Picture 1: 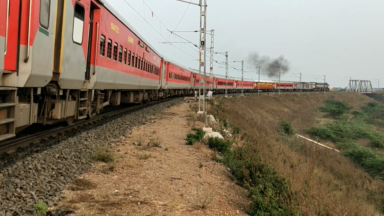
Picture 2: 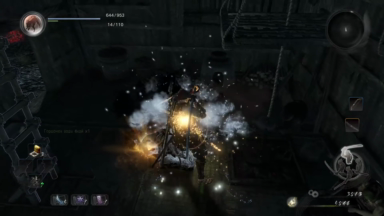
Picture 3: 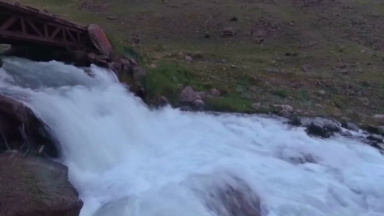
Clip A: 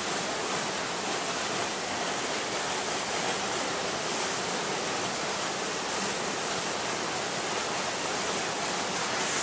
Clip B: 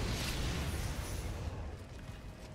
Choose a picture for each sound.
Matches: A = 3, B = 2